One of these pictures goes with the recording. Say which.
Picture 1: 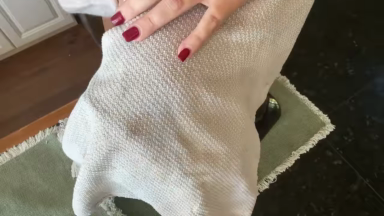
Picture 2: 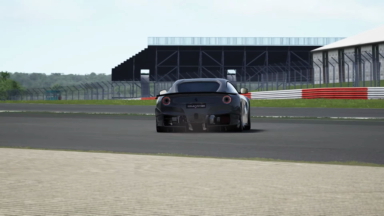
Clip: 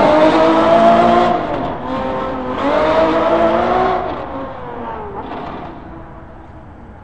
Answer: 2